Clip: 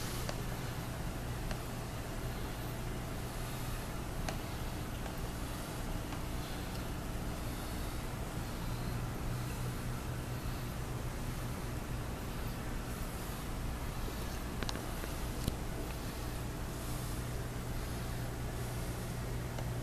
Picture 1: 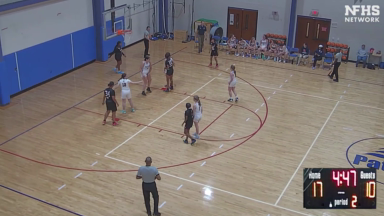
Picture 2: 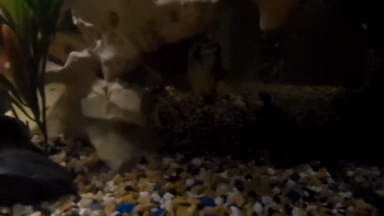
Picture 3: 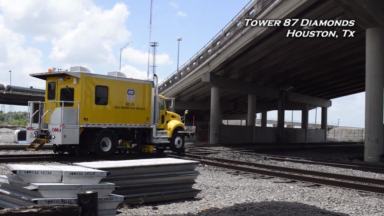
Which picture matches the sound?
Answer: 2